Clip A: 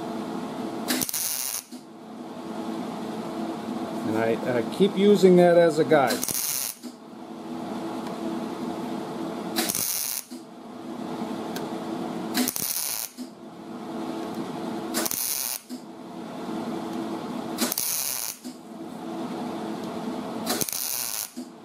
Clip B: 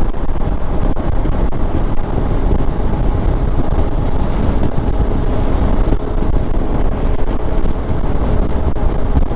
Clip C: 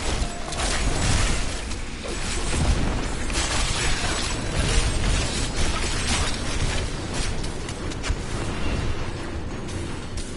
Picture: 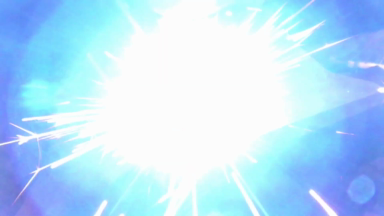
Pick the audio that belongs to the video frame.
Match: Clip A